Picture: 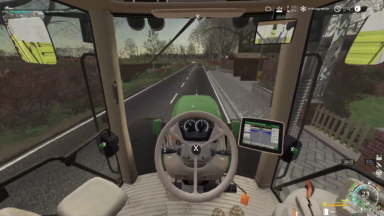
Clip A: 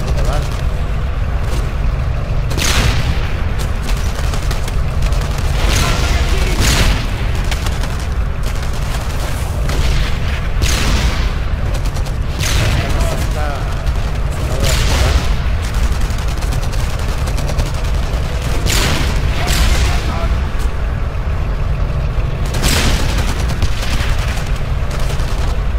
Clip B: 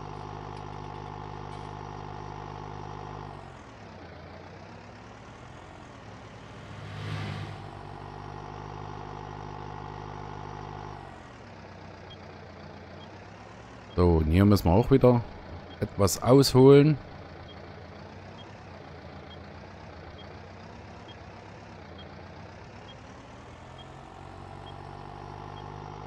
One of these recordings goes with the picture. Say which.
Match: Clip B